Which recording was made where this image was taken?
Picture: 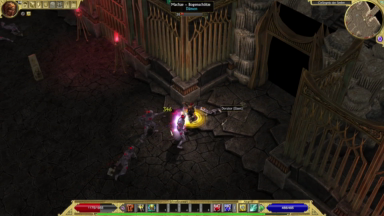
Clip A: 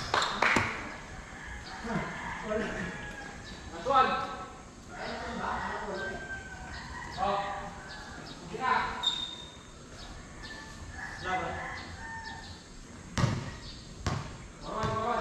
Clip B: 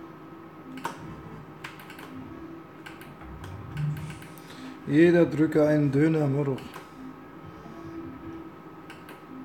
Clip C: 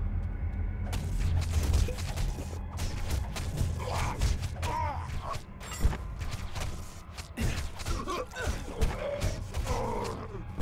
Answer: C